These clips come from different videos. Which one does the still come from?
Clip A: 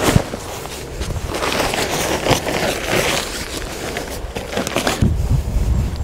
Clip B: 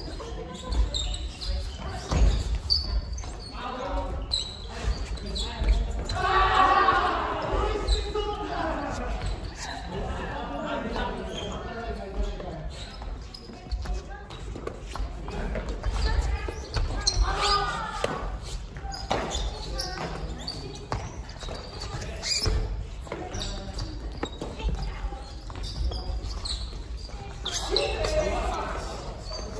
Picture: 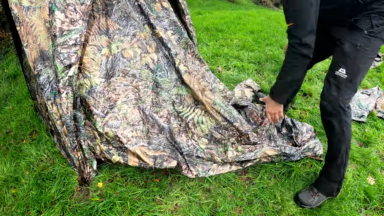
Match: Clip A